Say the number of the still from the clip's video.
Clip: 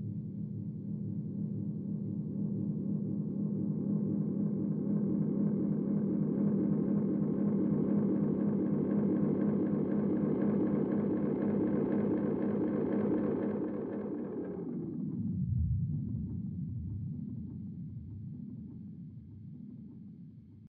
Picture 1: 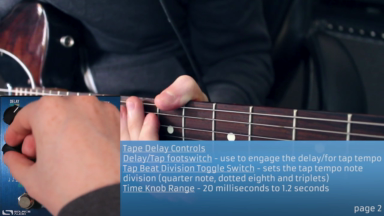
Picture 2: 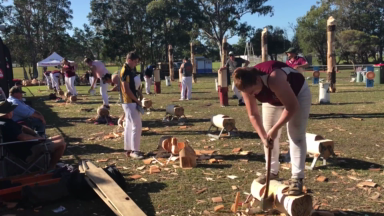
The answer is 1